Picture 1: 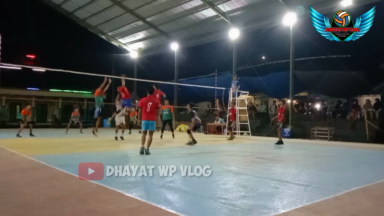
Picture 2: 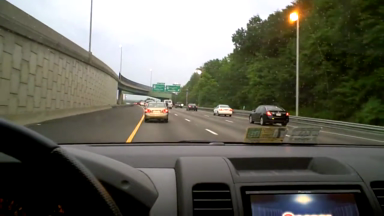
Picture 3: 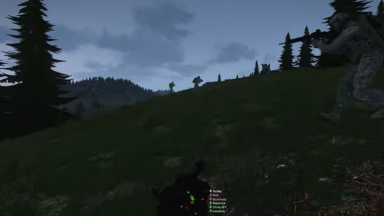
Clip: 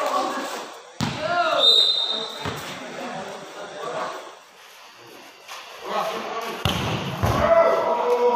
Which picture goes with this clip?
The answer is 1